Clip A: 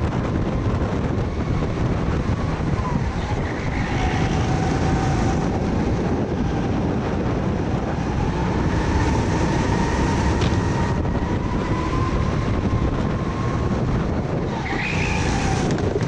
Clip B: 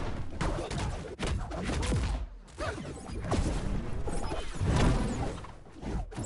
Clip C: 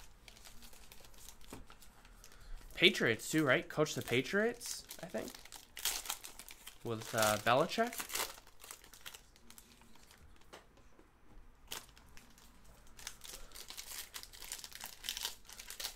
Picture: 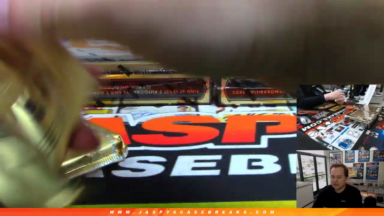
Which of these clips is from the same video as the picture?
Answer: C